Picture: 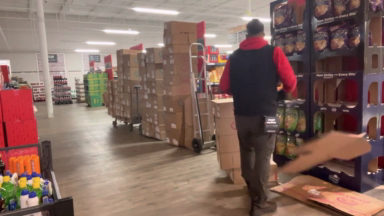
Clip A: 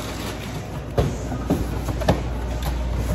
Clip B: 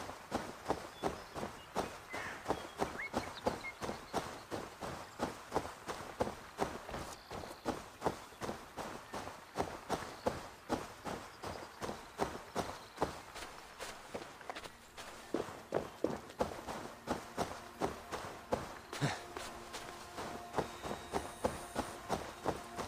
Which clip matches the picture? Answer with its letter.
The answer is A